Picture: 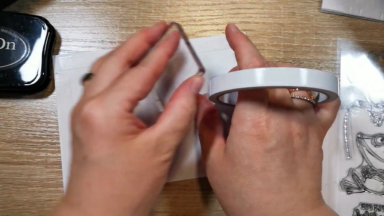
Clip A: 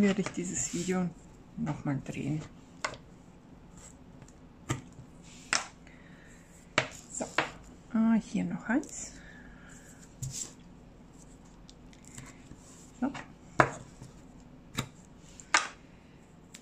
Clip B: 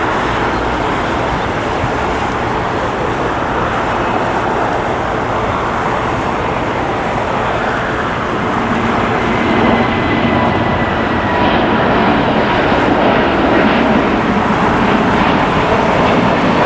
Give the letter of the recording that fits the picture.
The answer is A